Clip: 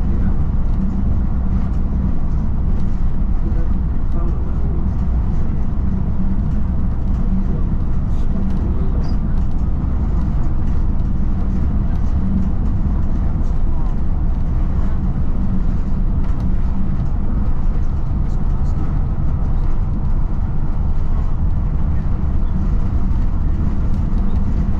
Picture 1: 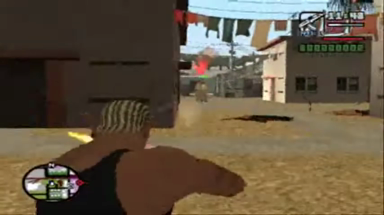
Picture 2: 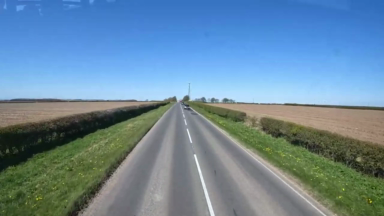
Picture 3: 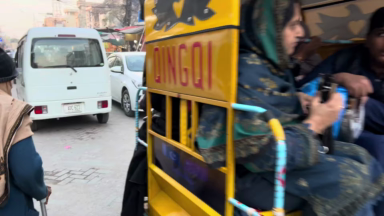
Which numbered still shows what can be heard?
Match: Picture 2